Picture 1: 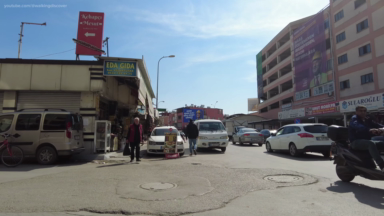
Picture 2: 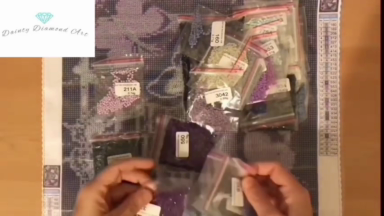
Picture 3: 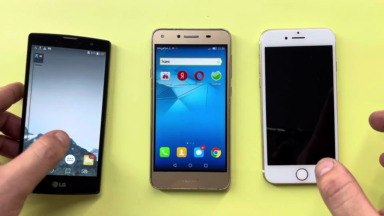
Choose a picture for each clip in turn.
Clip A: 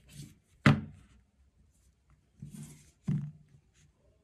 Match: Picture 3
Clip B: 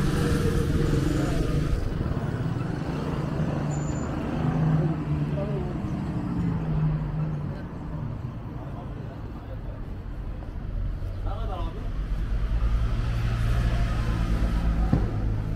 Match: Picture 1